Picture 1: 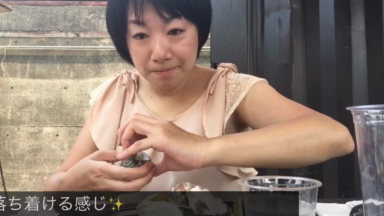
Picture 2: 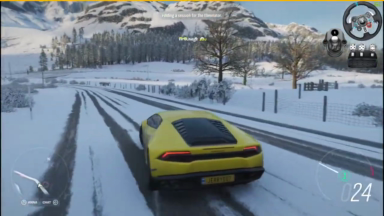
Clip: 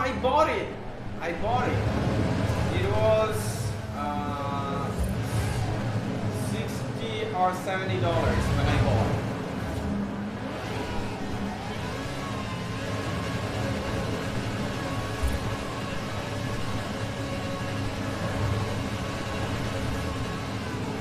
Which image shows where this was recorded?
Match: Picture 2